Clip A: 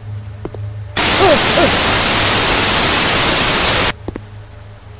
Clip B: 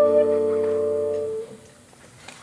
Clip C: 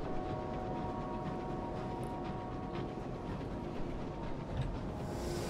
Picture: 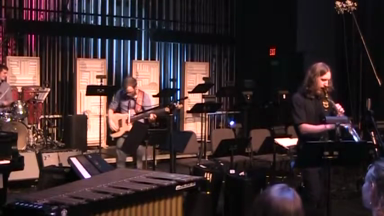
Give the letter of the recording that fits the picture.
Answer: B